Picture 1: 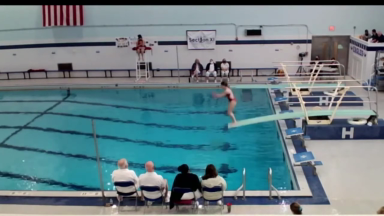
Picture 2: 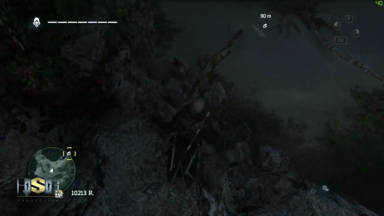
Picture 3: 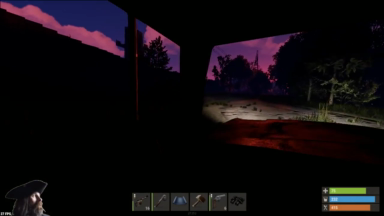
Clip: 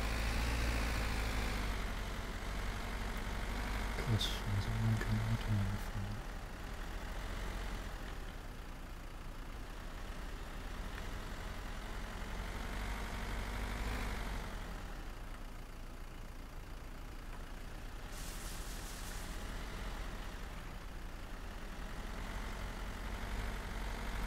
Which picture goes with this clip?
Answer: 3